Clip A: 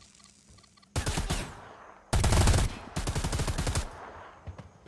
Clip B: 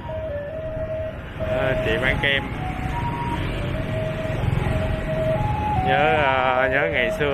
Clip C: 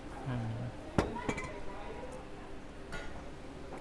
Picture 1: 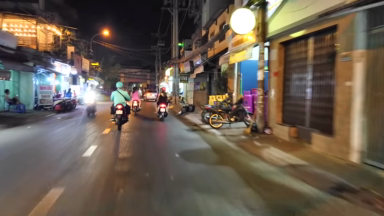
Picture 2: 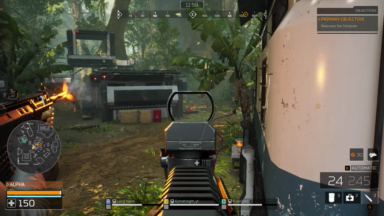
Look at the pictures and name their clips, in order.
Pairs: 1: B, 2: A